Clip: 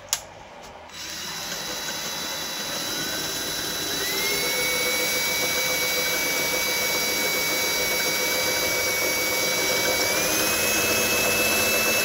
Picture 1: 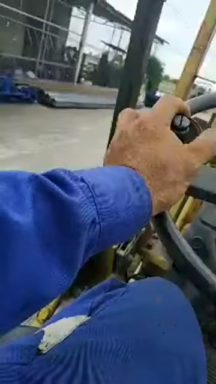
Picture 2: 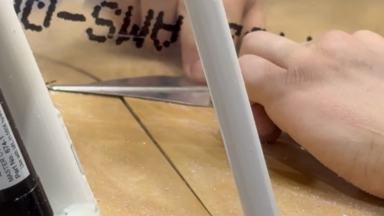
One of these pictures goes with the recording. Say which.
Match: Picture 2